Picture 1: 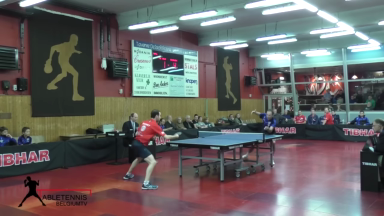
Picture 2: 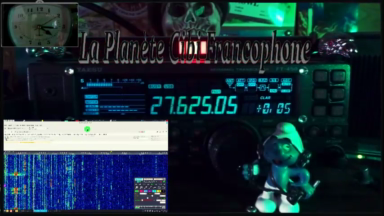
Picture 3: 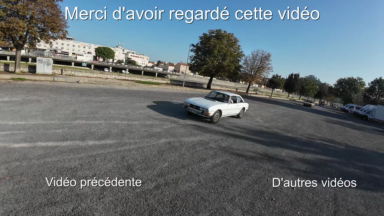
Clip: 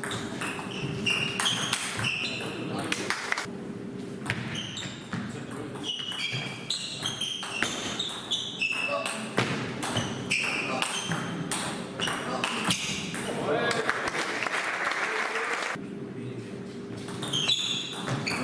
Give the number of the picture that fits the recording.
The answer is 1